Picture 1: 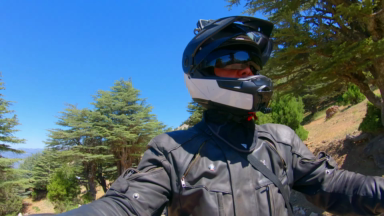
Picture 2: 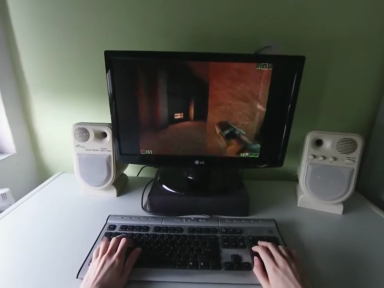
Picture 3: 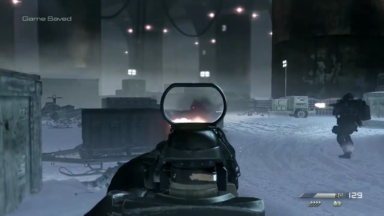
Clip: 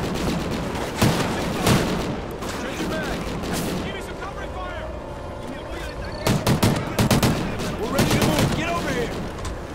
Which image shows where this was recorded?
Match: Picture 3